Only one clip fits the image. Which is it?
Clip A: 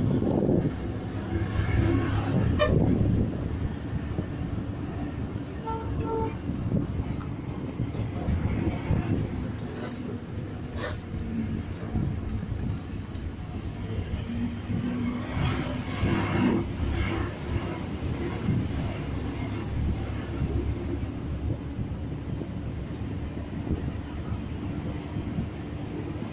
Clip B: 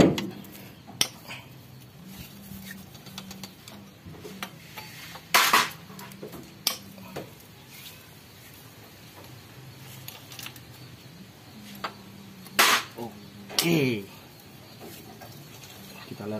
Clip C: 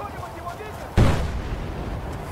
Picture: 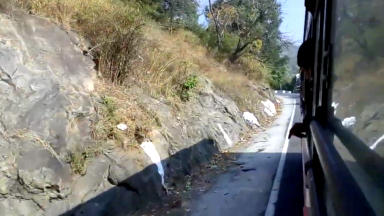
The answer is A